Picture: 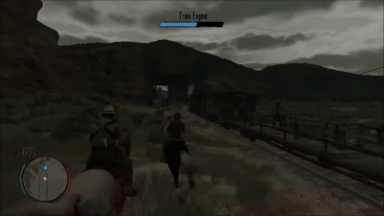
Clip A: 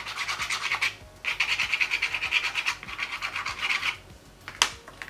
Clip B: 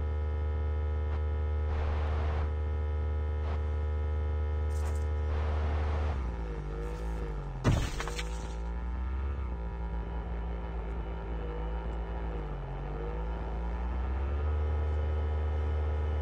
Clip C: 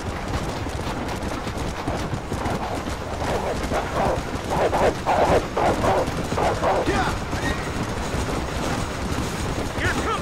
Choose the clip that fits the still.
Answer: C